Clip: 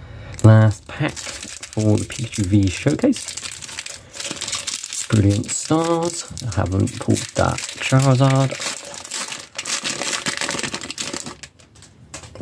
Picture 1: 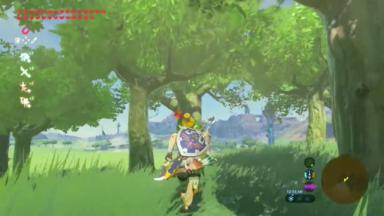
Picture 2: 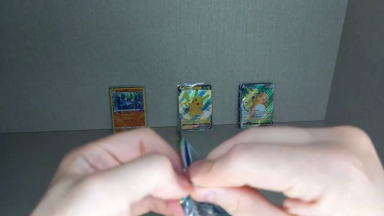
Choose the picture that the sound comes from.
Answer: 2